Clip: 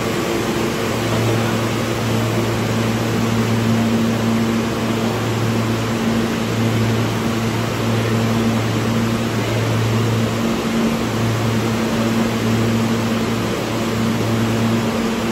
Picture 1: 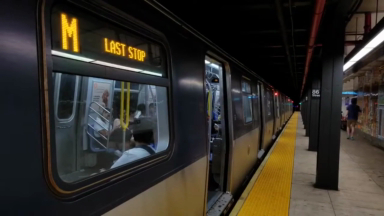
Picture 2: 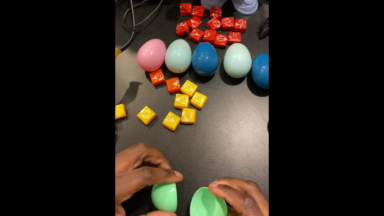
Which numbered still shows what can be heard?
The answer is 1